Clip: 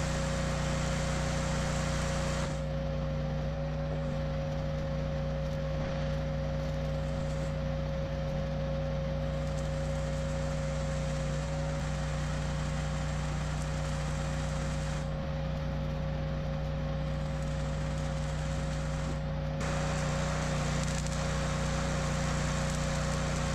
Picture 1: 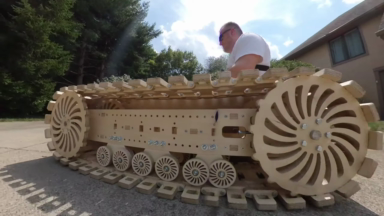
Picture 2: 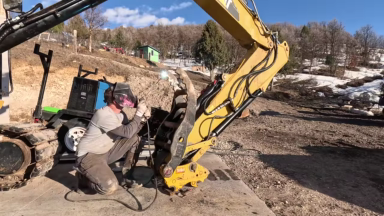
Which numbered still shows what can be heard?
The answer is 2